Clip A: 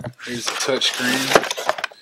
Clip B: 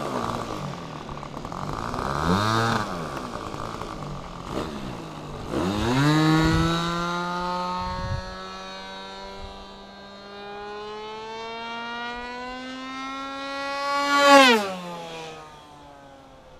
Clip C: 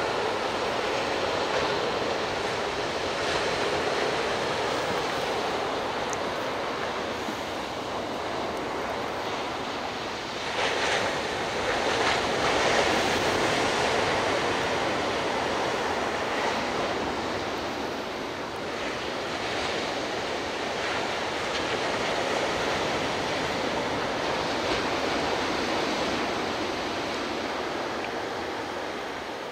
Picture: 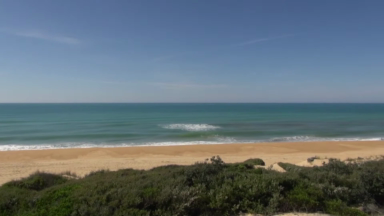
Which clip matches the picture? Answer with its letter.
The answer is C